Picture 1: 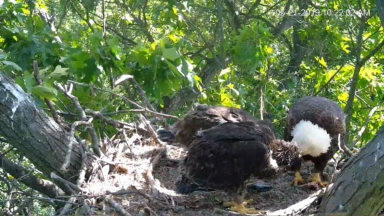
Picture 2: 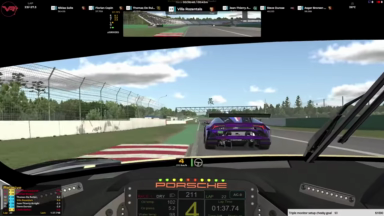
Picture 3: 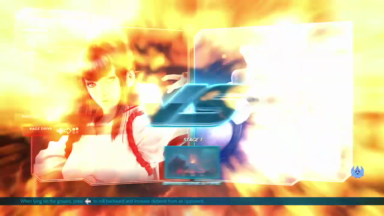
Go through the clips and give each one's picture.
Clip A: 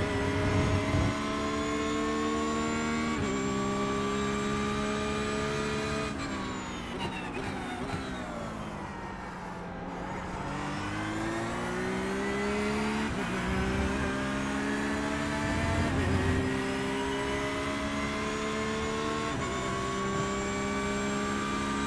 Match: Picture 2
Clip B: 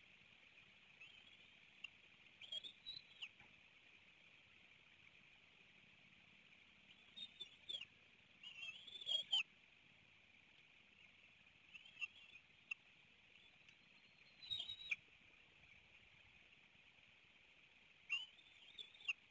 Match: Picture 1